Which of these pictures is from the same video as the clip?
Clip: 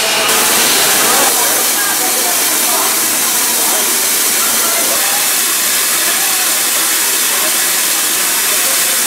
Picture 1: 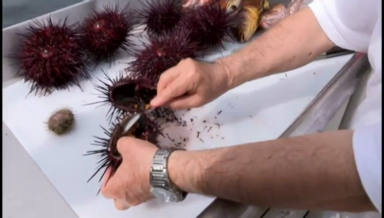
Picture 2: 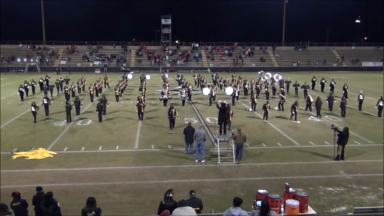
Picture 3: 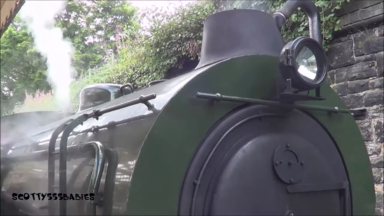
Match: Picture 3